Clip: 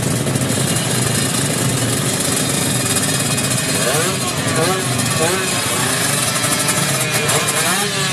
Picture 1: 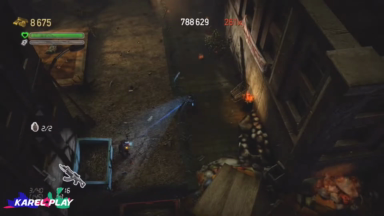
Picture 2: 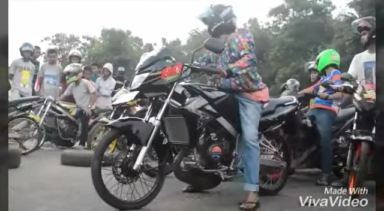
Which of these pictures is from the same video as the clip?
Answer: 2